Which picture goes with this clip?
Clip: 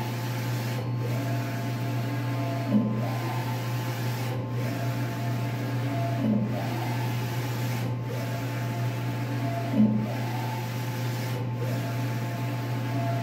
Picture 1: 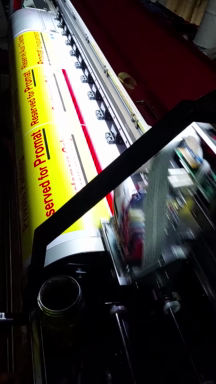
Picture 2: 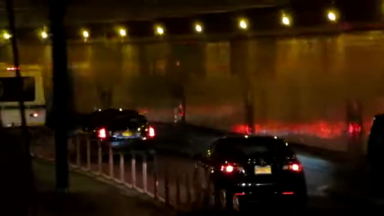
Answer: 1